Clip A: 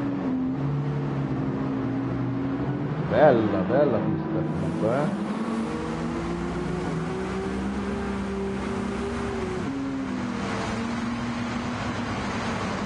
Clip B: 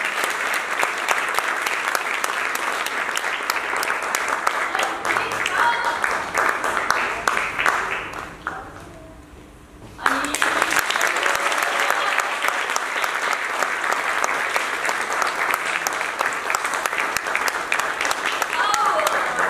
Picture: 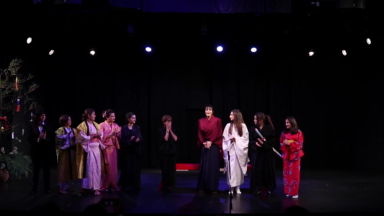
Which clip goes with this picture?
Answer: B